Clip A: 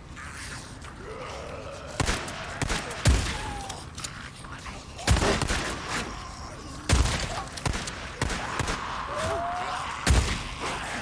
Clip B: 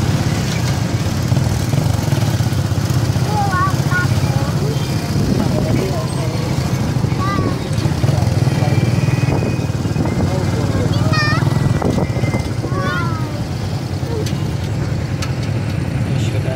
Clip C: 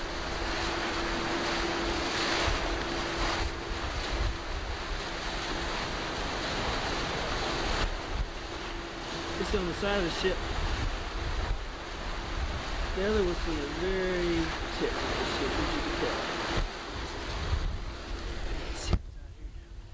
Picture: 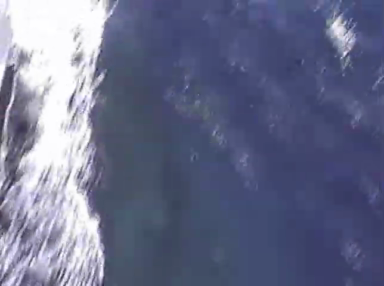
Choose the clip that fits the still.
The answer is C